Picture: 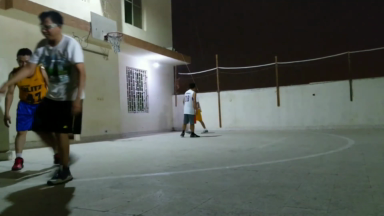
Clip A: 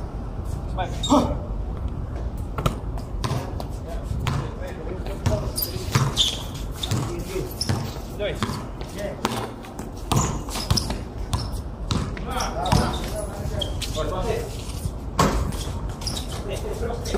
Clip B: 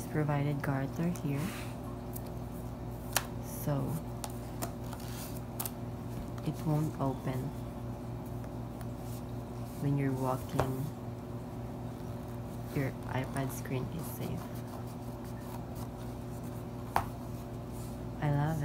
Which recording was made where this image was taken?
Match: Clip A